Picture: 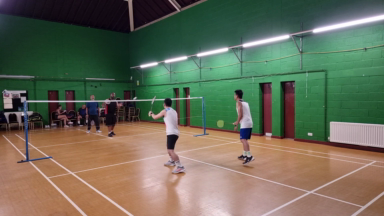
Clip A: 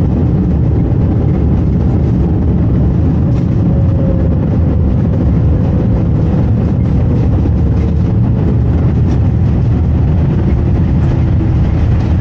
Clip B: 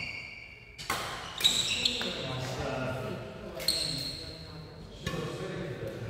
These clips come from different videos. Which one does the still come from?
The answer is B